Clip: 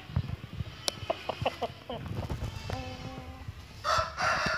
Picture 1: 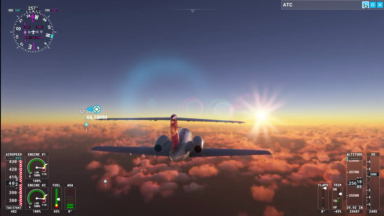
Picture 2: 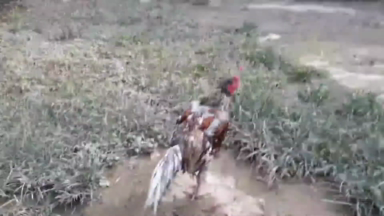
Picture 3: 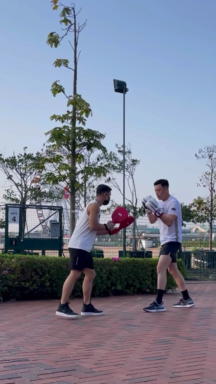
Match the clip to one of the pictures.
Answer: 2